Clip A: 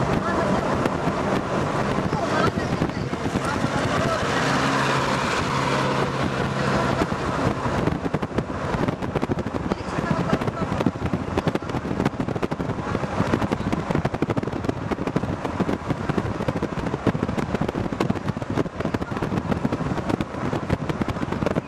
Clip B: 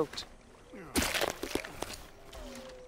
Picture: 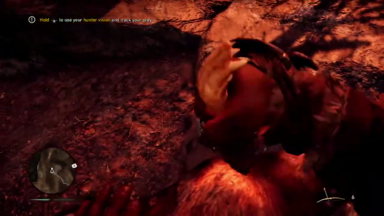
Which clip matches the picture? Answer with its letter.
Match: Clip B